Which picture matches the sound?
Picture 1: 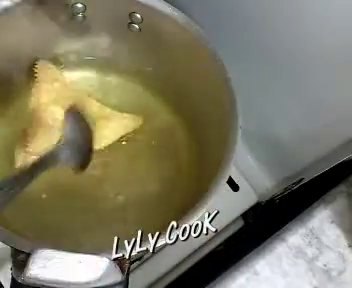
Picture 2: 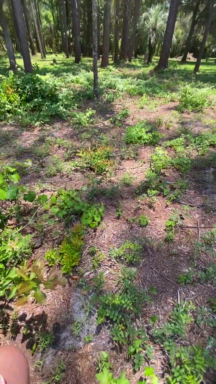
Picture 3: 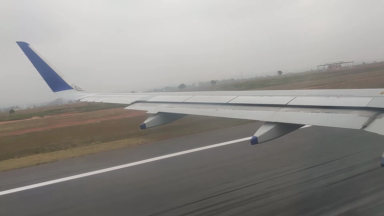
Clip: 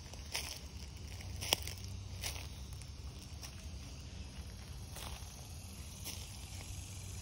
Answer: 2